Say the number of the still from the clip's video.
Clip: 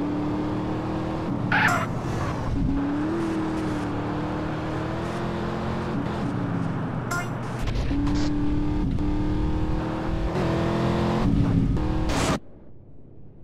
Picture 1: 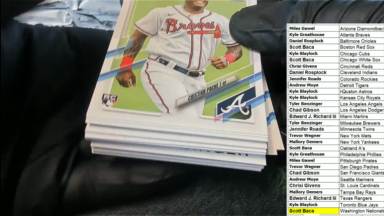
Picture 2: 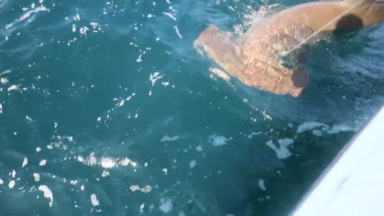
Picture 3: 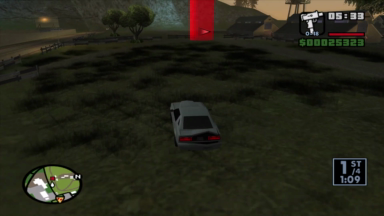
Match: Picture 3